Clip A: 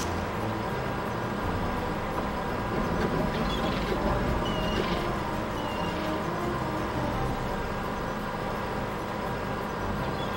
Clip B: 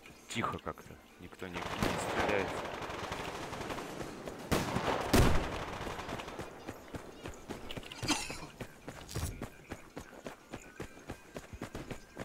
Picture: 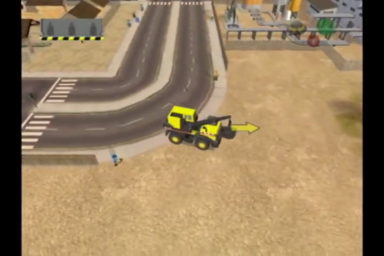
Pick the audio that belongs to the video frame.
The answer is A